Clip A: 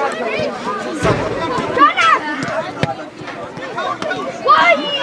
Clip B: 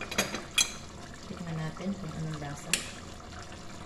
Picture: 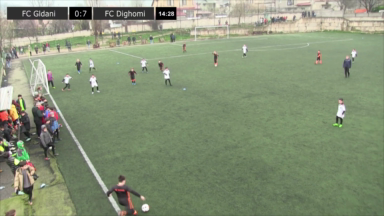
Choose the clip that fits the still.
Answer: A